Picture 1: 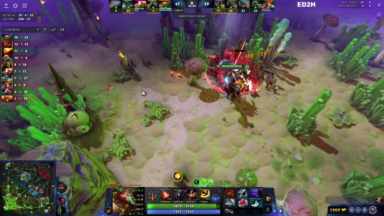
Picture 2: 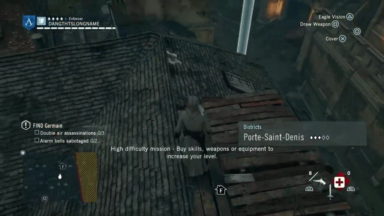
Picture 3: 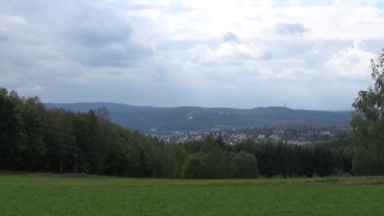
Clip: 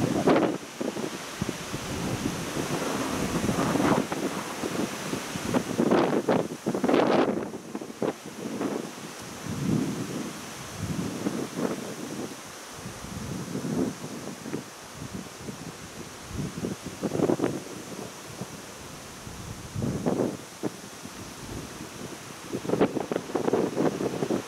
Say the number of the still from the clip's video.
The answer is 3